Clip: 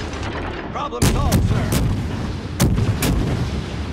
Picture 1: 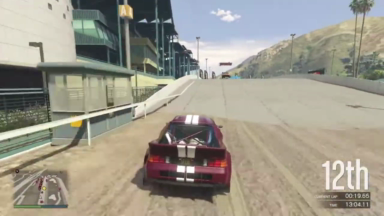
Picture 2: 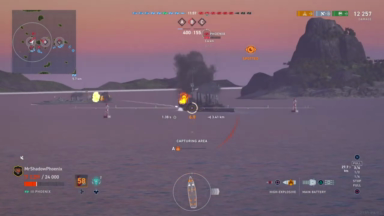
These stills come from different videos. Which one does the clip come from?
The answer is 2